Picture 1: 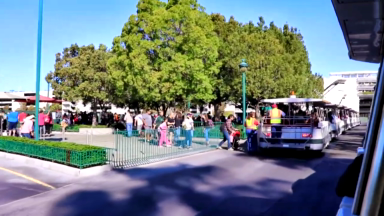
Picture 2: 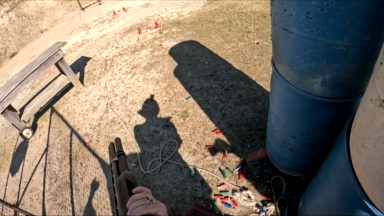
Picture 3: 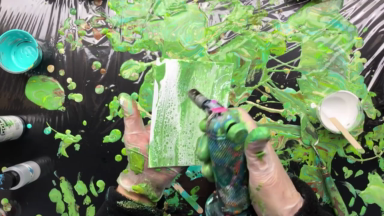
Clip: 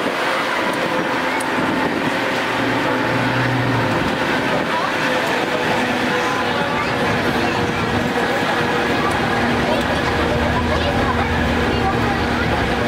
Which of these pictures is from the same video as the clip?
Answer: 1